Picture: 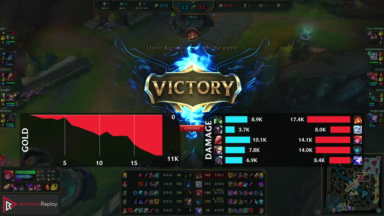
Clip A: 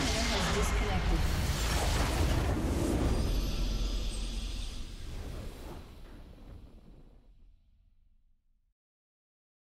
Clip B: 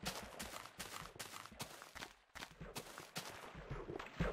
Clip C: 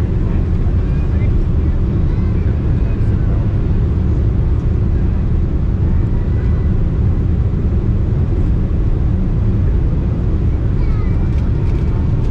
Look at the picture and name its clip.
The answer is A